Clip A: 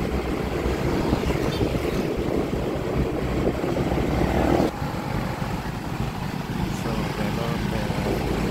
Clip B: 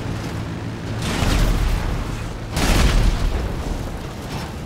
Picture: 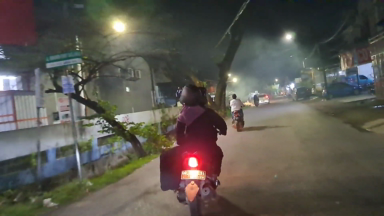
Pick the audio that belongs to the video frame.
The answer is A